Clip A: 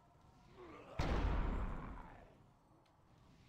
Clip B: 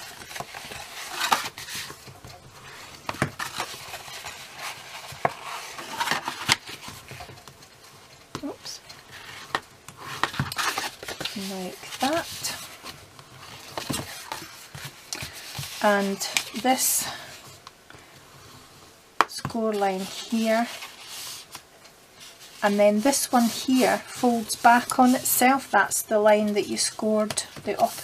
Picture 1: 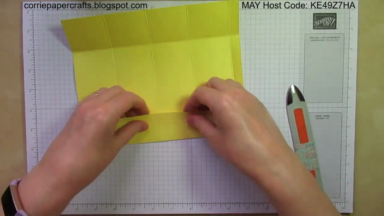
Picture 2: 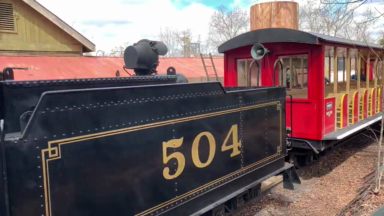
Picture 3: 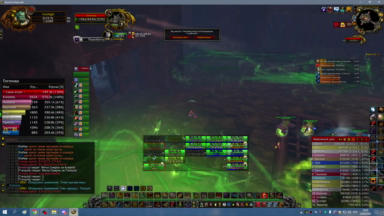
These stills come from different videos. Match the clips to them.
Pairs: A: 3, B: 1